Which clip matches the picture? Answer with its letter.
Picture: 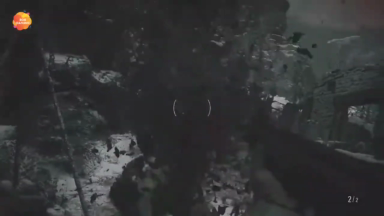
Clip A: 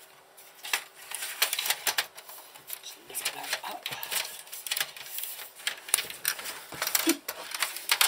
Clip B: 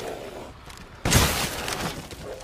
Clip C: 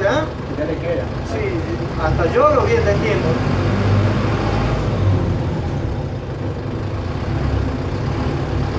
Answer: B